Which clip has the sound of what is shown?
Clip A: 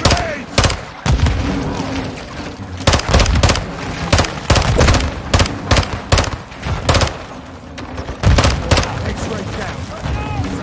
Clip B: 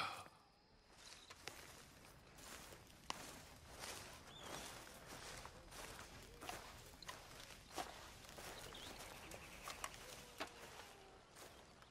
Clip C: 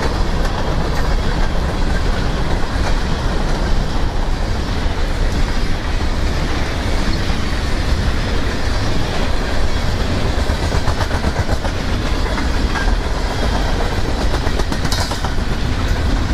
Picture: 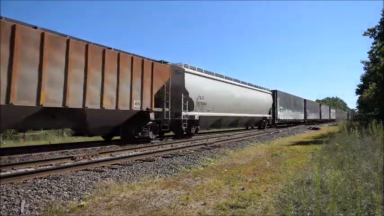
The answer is C